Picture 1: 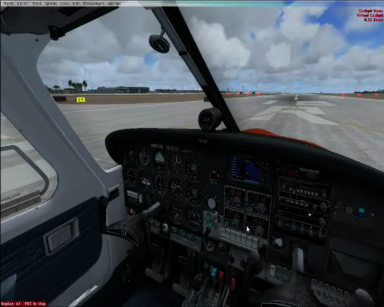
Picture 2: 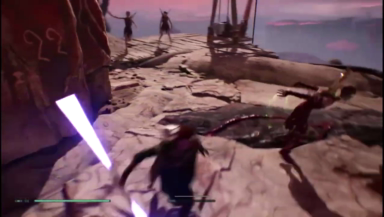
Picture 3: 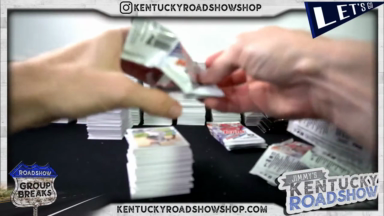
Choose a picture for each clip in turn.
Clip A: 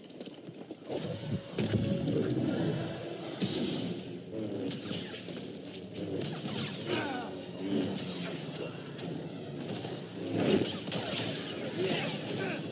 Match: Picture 2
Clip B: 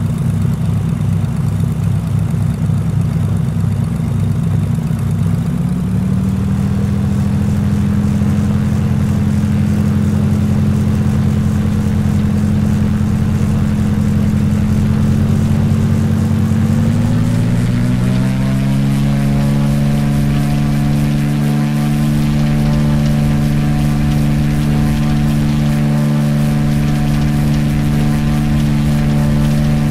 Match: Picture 1